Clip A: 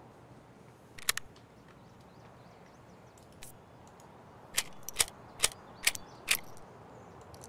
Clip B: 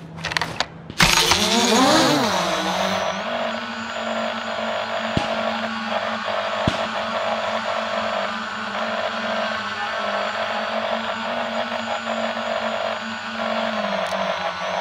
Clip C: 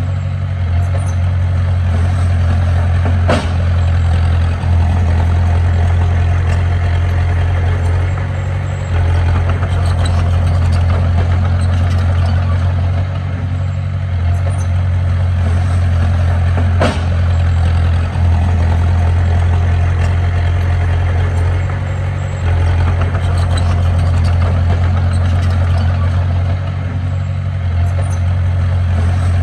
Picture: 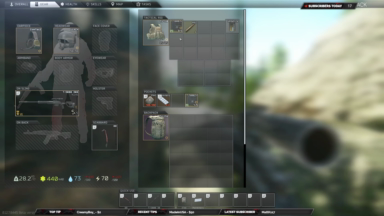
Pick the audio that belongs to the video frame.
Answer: A